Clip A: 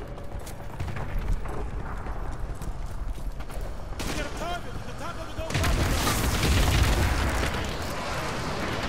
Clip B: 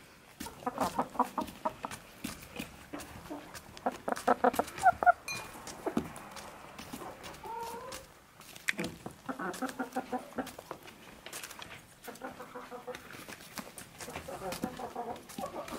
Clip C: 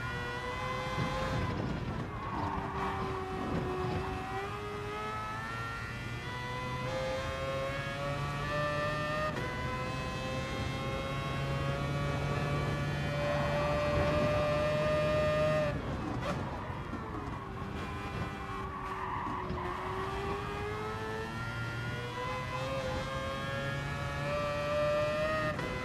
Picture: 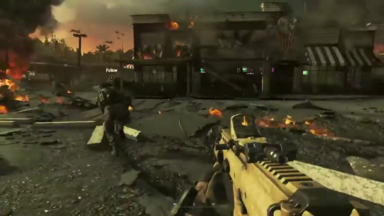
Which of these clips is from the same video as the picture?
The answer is A